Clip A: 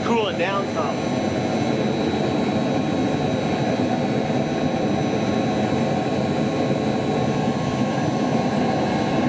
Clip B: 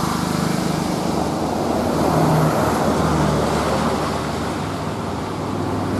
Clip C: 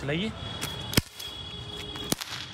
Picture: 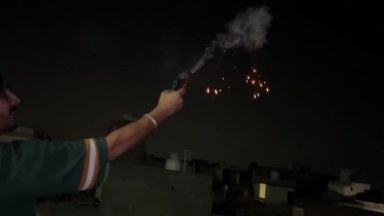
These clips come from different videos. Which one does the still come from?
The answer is C